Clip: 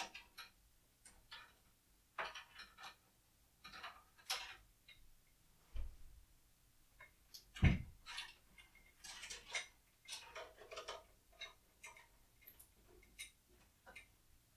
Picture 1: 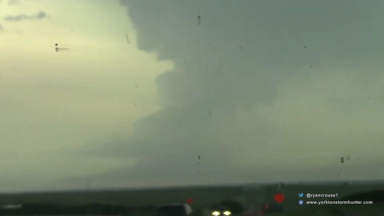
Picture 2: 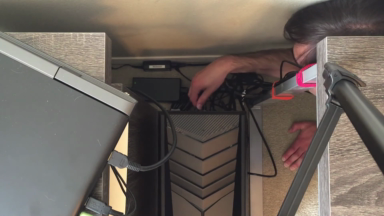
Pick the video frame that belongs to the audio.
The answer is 2